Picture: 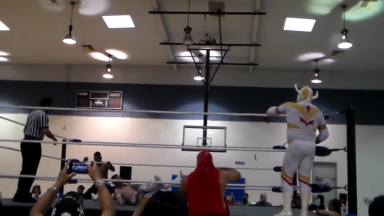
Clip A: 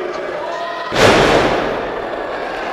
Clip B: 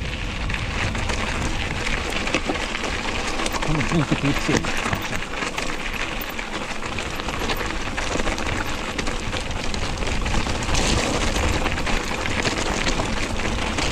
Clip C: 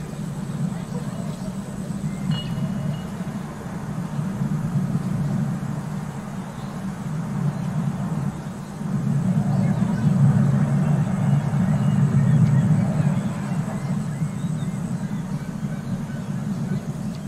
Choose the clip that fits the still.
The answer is A